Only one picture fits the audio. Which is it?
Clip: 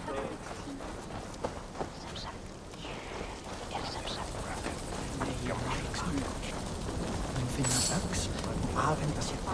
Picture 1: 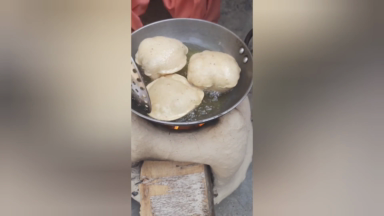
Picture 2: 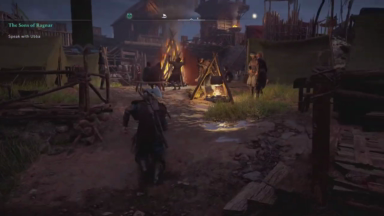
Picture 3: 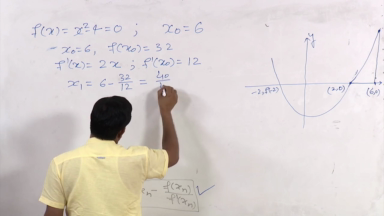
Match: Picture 2